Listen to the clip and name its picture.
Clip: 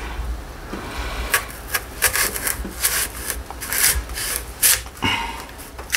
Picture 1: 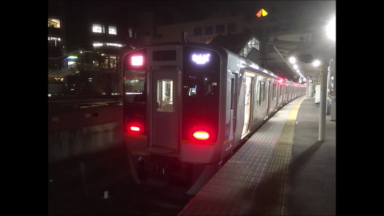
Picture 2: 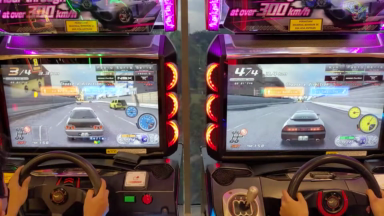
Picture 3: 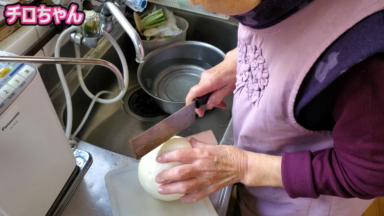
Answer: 3